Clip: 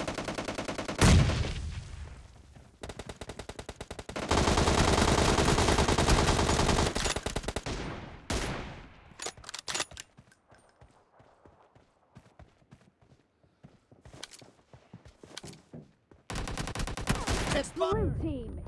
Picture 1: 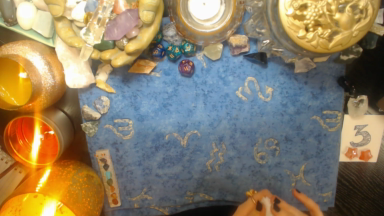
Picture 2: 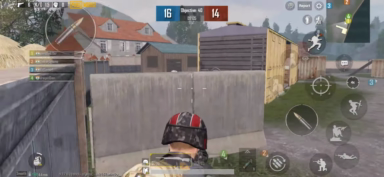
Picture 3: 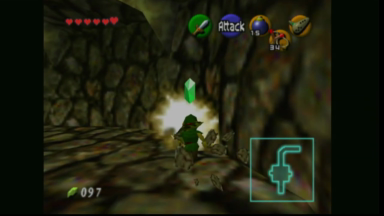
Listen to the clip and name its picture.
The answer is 2